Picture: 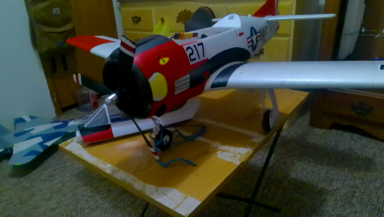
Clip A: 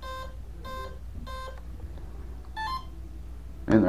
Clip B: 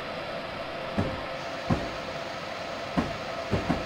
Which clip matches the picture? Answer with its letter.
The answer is A